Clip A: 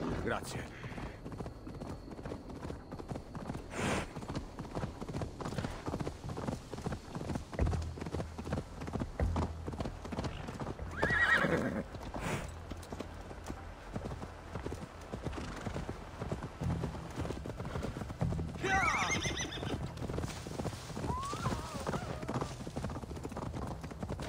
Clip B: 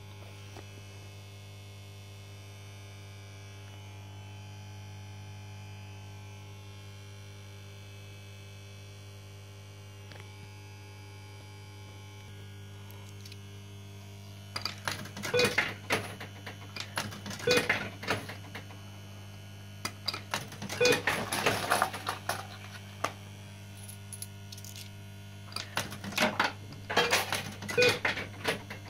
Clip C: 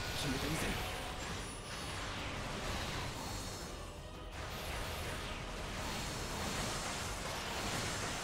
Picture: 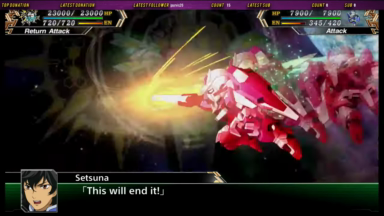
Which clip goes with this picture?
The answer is C